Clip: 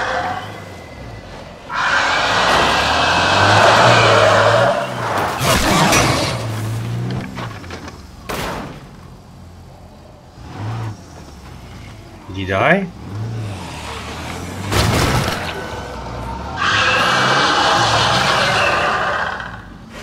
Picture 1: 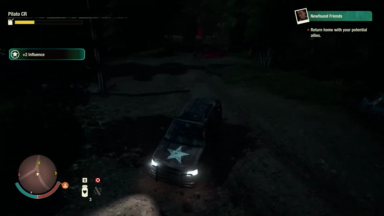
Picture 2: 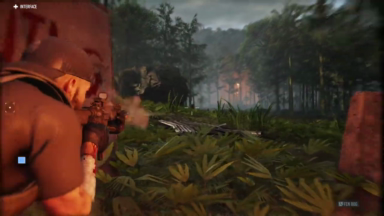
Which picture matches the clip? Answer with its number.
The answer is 1